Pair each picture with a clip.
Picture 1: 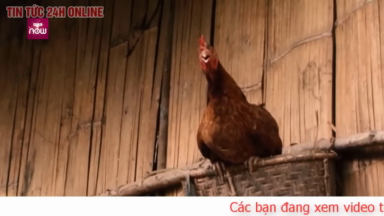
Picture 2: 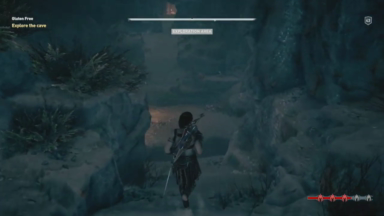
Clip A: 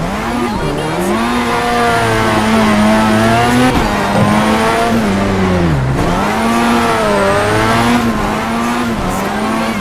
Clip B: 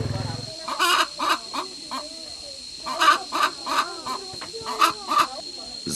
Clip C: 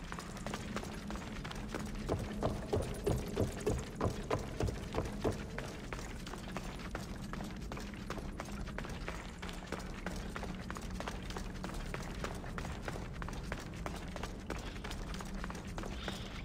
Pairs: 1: B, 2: C